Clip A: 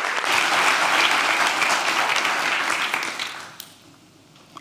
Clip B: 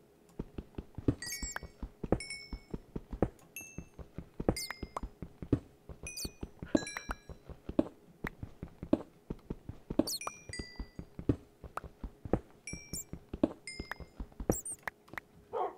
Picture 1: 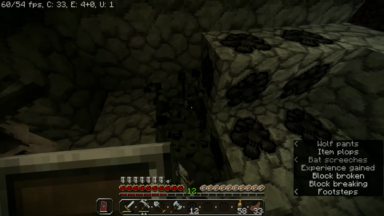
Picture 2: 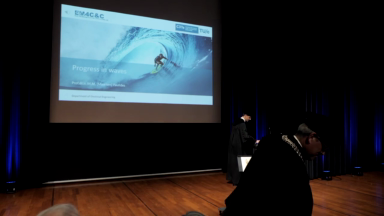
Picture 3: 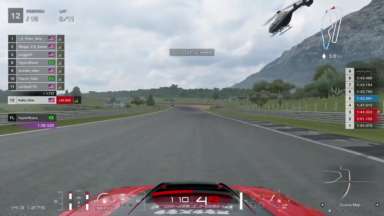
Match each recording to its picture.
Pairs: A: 2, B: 1